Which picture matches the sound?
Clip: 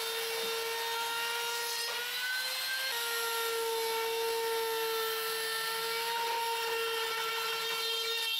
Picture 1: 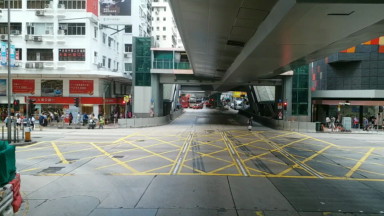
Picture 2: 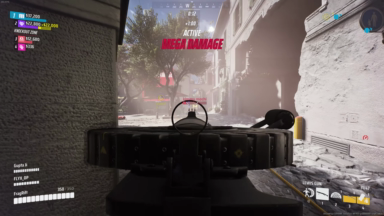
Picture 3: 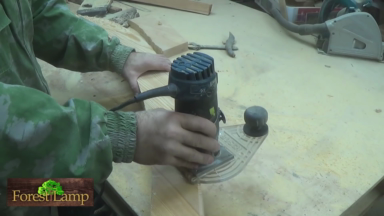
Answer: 3